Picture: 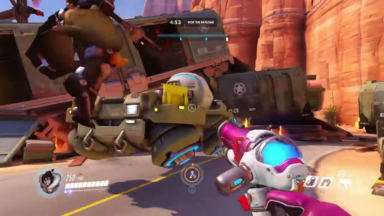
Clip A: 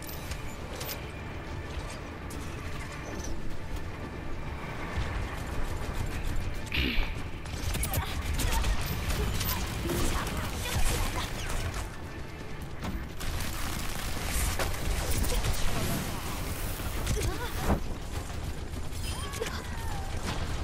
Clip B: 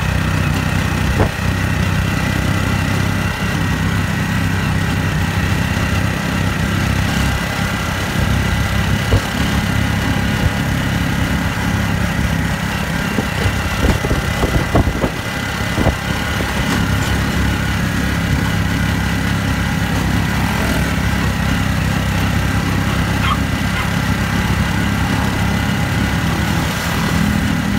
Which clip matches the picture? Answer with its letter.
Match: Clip A